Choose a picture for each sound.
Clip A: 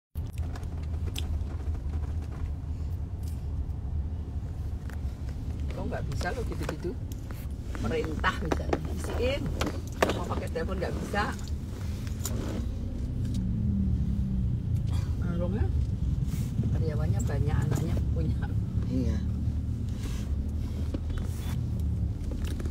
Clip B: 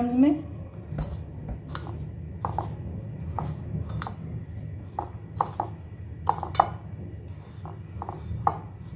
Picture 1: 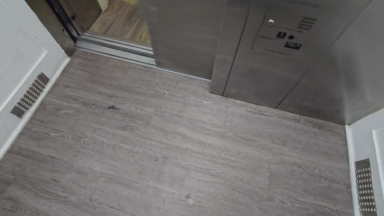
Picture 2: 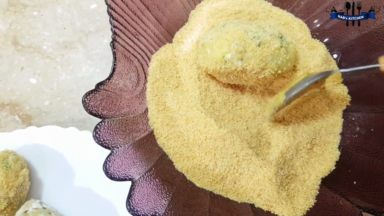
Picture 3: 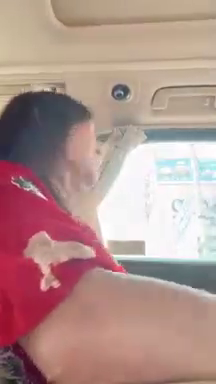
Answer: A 3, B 2